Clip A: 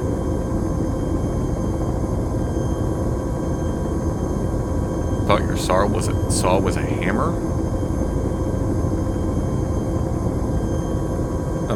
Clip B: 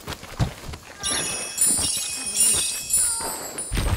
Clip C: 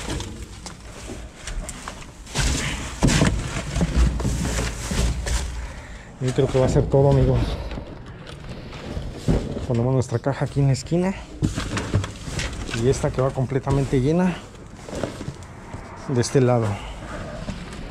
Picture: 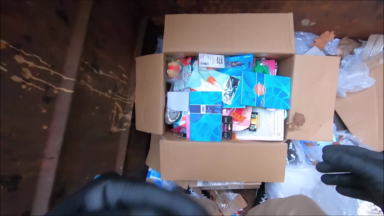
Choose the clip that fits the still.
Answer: C